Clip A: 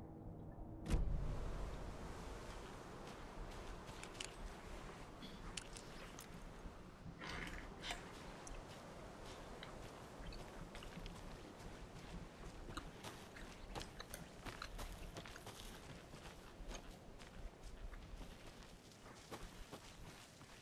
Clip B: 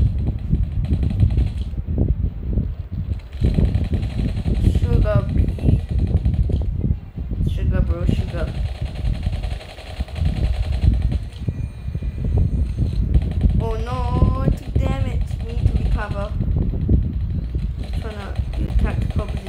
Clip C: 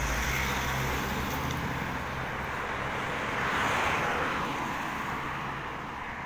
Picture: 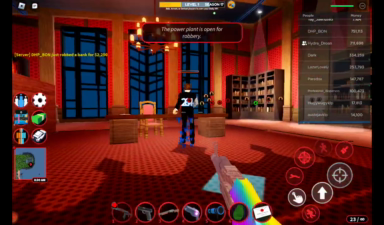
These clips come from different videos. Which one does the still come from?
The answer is B